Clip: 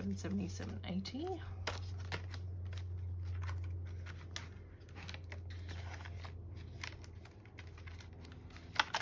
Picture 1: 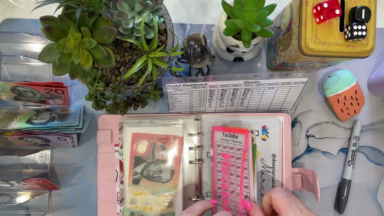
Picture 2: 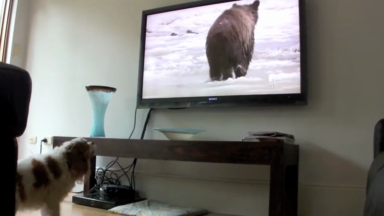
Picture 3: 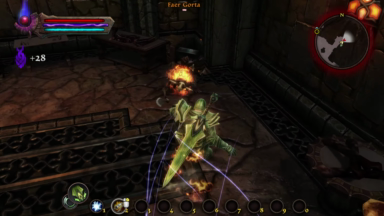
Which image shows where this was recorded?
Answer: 1